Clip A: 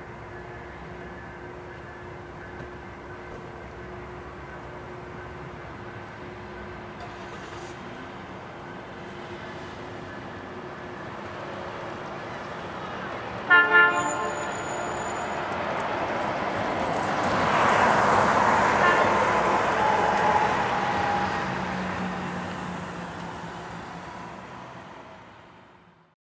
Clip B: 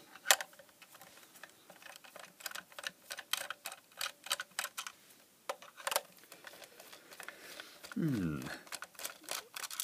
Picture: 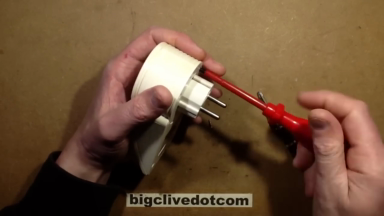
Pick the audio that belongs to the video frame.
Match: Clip B